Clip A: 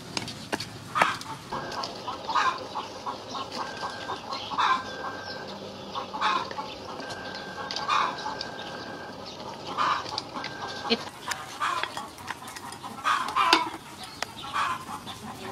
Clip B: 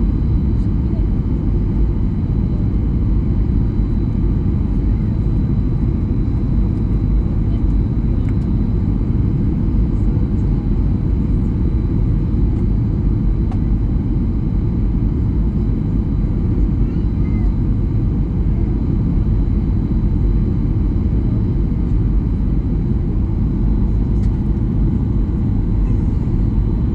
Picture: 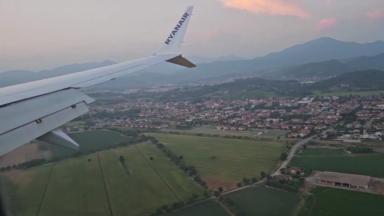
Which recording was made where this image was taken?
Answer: B